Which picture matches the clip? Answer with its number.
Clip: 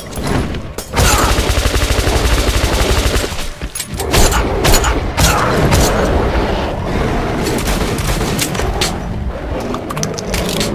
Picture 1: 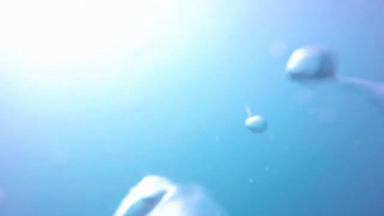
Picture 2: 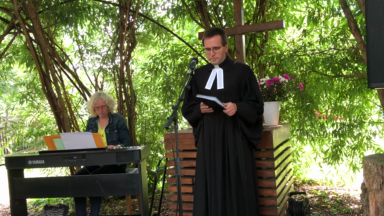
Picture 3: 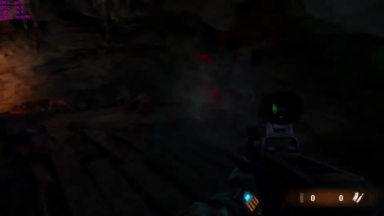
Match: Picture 3